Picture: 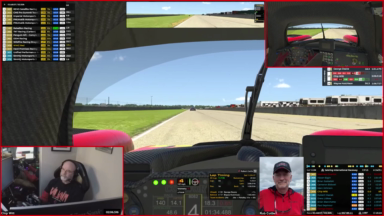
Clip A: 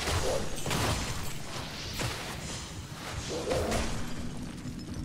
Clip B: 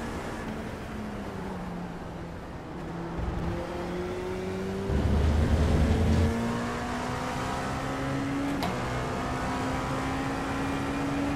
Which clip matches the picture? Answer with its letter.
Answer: B